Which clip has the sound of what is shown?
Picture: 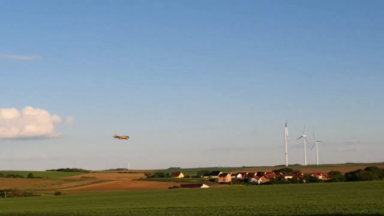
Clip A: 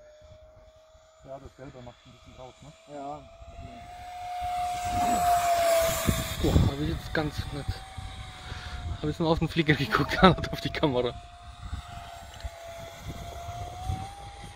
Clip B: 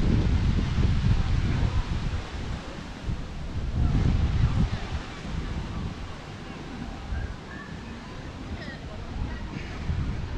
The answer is A